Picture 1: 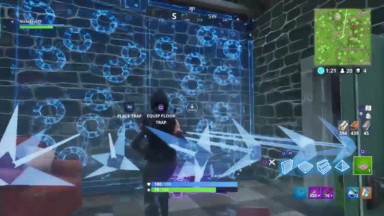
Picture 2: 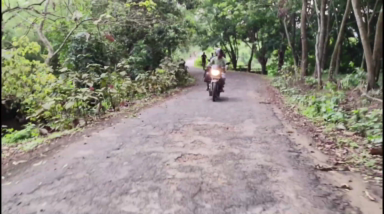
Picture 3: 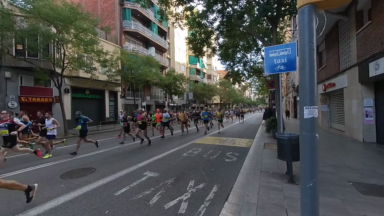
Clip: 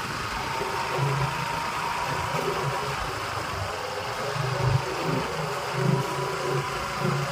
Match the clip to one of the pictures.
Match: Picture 2